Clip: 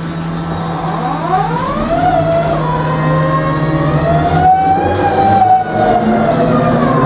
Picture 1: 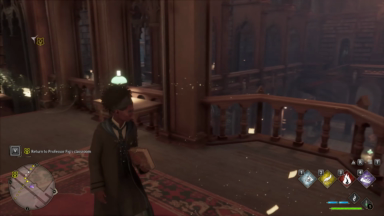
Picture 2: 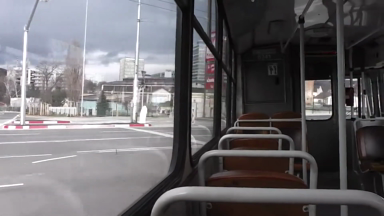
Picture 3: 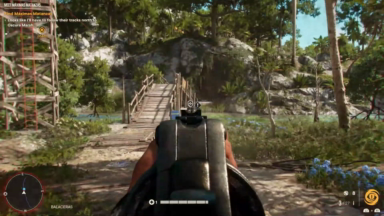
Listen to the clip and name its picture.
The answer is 2